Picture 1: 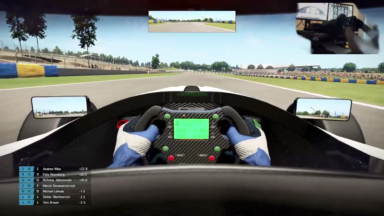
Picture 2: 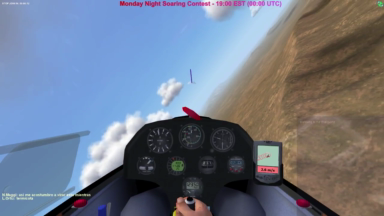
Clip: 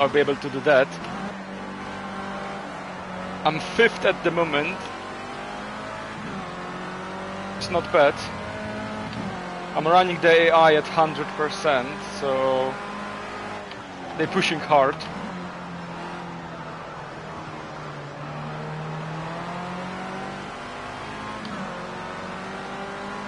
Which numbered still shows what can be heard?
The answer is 1